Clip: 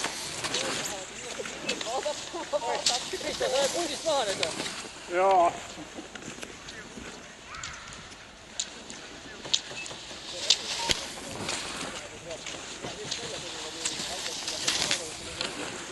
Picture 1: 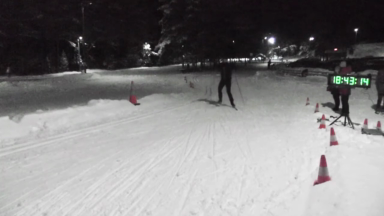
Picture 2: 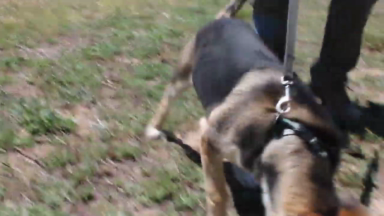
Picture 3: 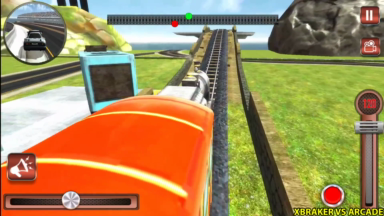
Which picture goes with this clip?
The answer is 1